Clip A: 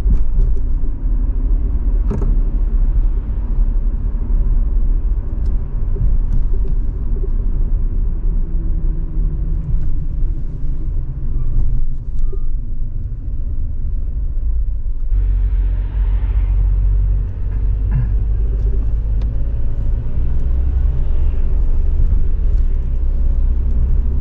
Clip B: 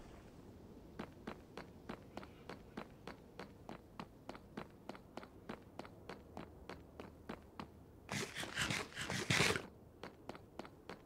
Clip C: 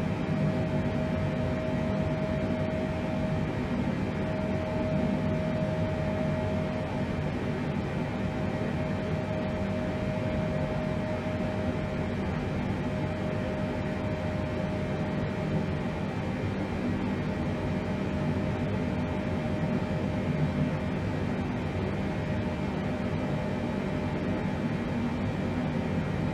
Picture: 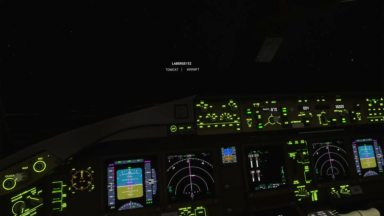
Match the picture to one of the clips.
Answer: C